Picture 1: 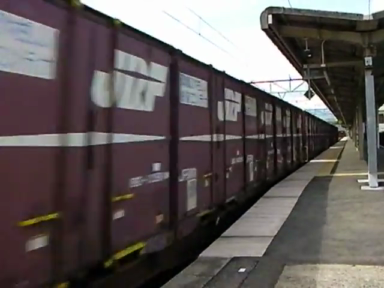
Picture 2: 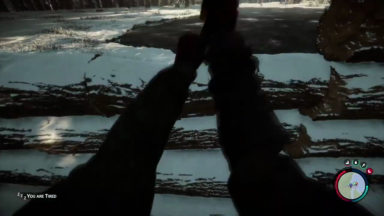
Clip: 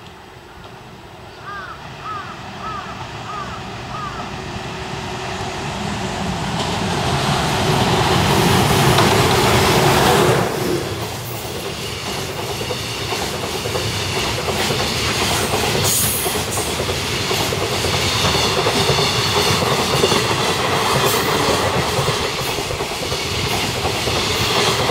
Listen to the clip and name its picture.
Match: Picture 1